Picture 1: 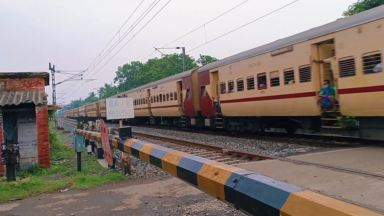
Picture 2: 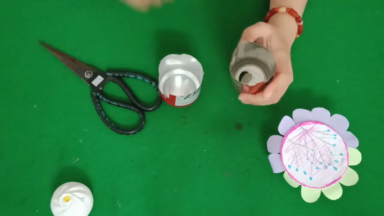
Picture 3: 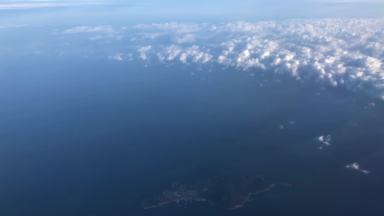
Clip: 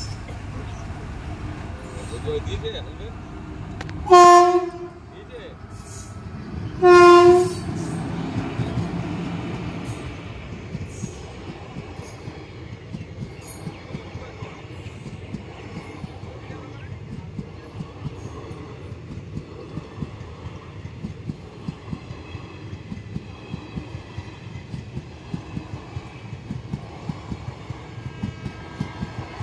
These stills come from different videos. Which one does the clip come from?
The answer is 1